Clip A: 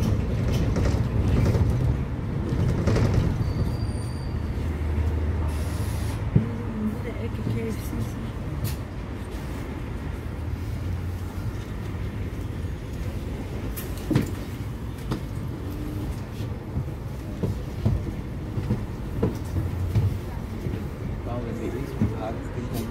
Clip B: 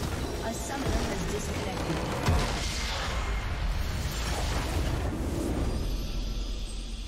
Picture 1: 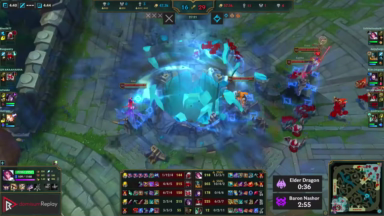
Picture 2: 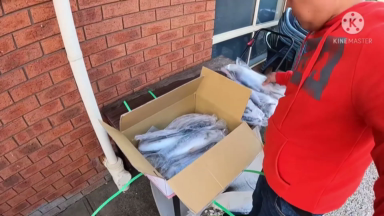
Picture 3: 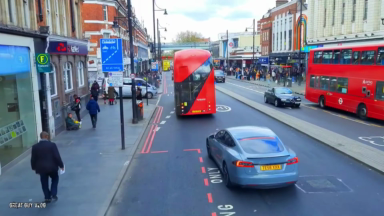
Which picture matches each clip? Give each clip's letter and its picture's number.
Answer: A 3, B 1